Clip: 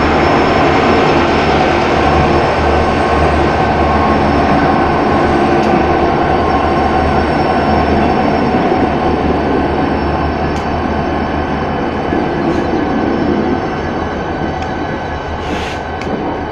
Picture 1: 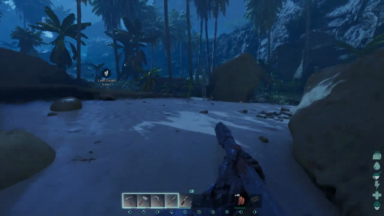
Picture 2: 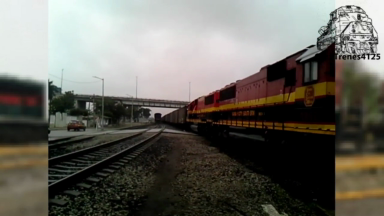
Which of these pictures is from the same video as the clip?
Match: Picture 2